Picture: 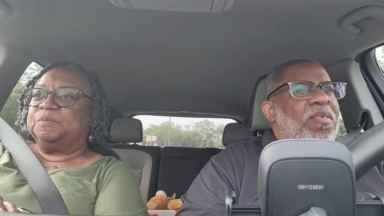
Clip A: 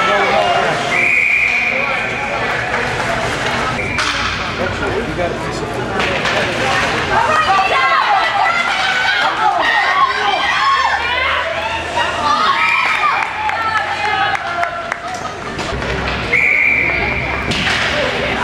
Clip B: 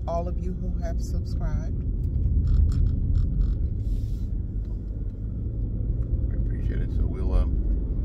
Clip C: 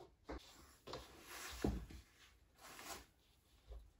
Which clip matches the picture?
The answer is B